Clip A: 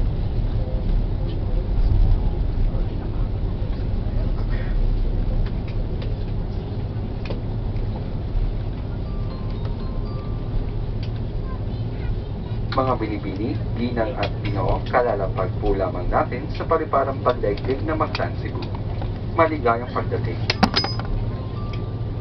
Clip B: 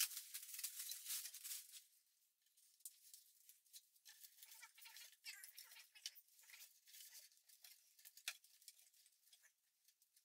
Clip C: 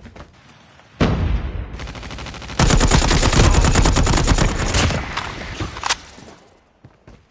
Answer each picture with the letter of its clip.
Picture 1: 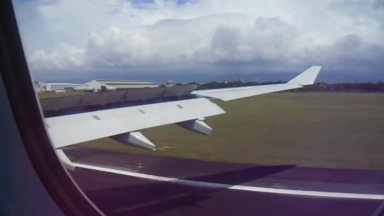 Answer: A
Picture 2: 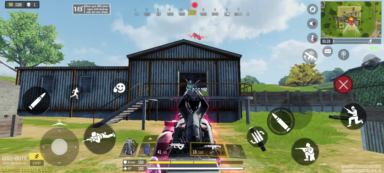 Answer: C